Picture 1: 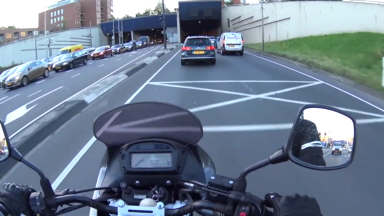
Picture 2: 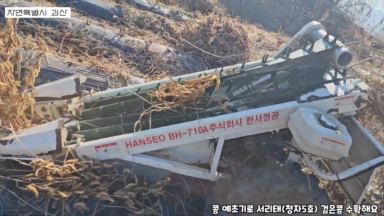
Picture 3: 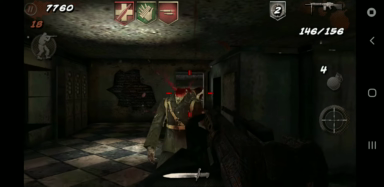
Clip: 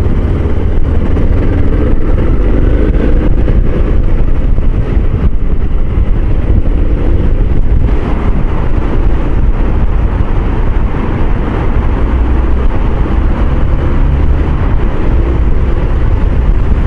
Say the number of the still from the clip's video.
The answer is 1